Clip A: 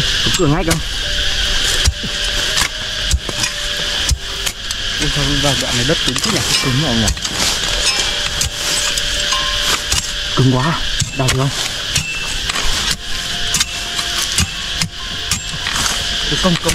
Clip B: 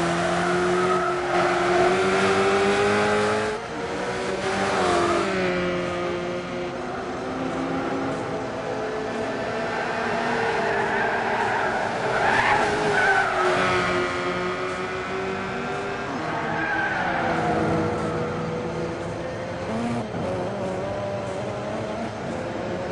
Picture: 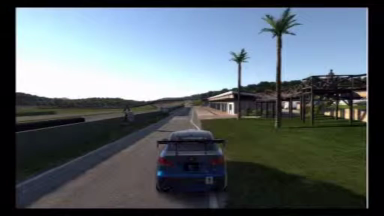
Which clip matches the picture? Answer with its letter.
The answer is B